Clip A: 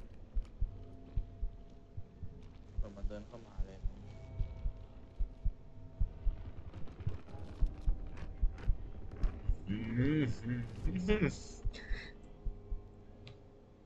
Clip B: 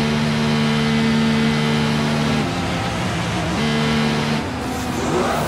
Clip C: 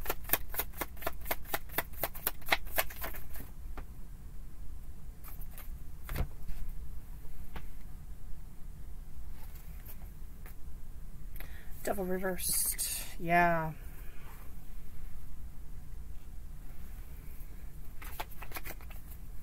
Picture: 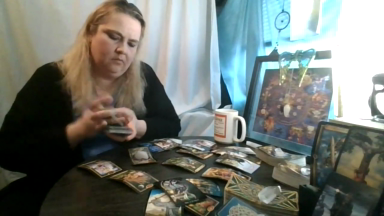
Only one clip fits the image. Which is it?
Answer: C